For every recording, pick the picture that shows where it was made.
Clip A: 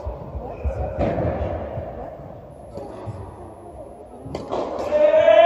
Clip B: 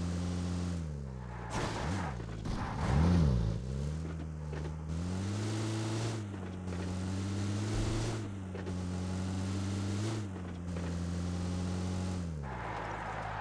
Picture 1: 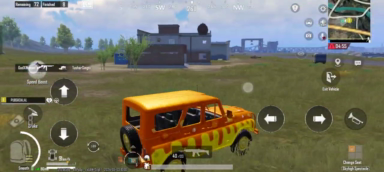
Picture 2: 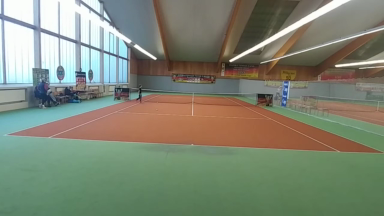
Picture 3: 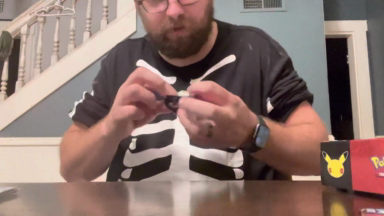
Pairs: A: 2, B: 1